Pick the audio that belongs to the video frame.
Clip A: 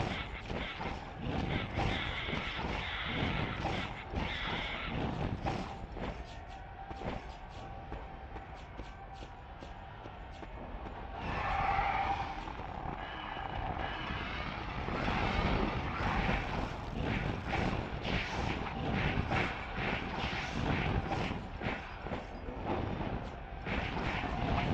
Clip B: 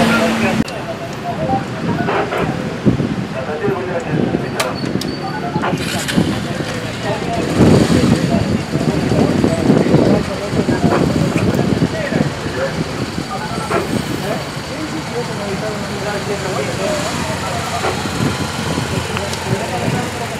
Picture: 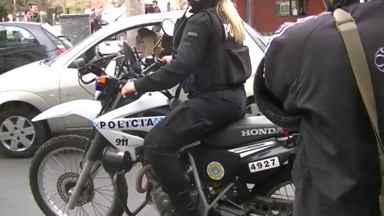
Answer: B